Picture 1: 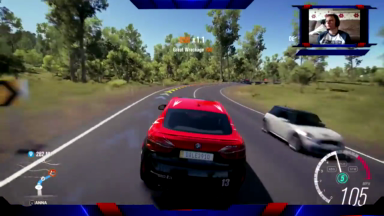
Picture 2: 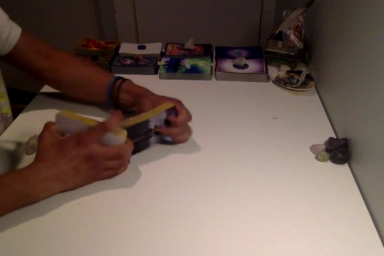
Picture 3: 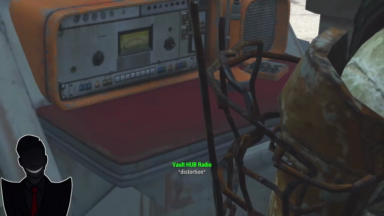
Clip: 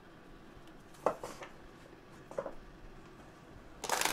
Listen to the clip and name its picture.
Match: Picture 2